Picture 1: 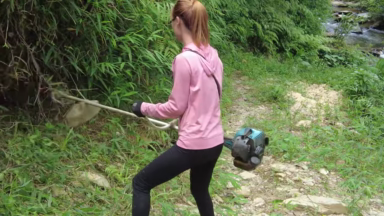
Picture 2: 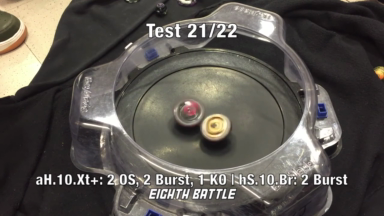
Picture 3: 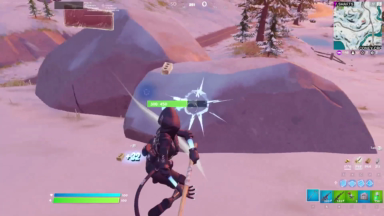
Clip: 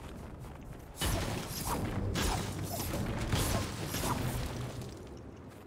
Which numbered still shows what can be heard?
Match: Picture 3